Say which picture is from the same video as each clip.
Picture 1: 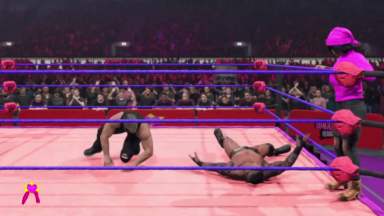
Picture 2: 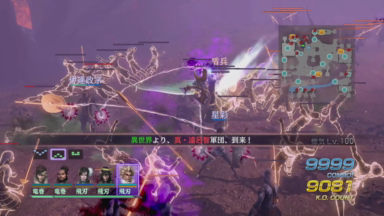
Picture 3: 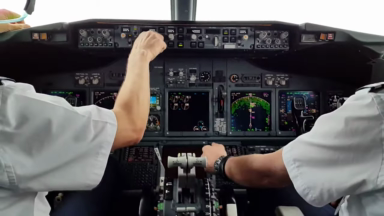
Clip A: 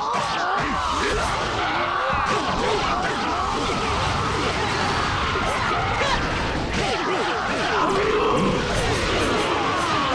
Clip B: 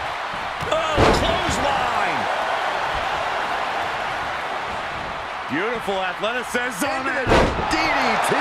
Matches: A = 2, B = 1